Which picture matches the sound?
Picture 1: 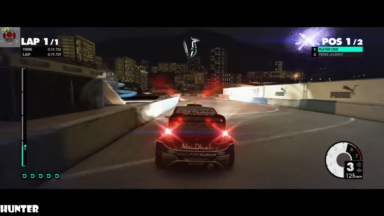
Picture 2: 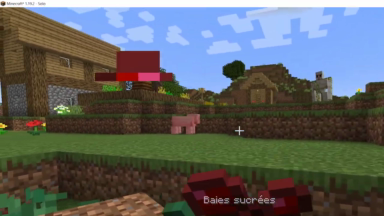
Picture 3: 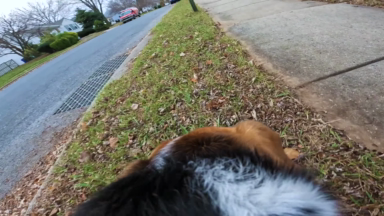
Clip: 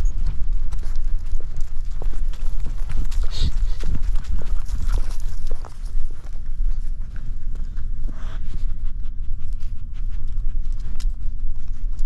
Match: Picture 3